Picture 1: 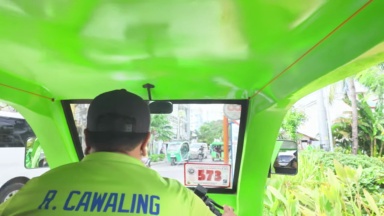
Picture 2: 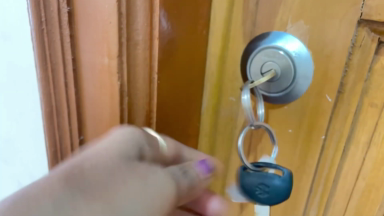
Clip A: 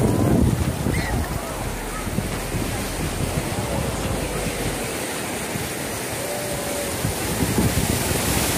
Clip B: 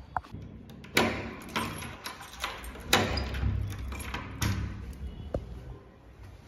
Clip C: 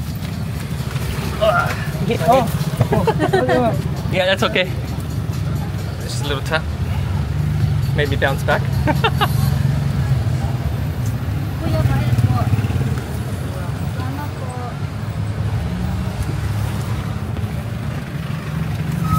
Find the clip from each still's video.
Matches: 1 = C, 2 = B